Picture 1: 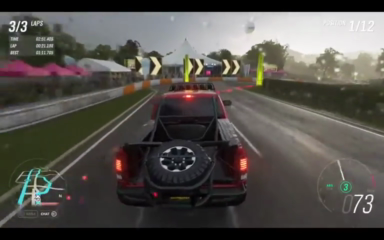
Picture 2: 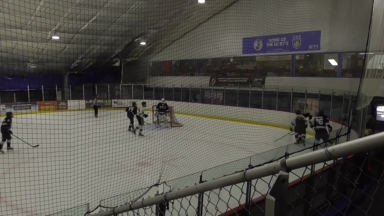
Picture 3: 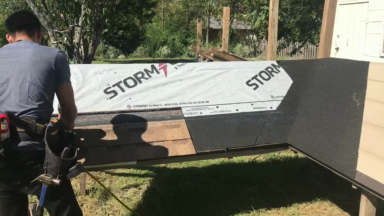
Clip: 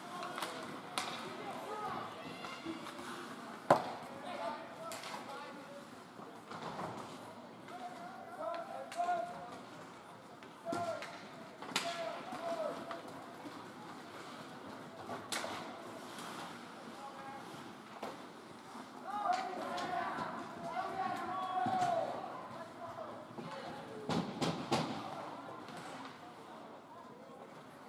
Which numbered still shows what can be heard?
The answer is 2